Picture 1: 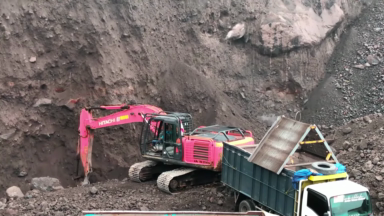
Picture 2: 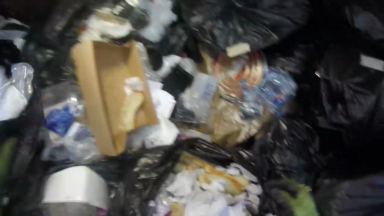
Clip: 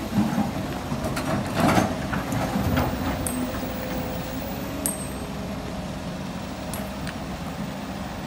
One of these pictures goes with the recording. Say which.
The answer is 1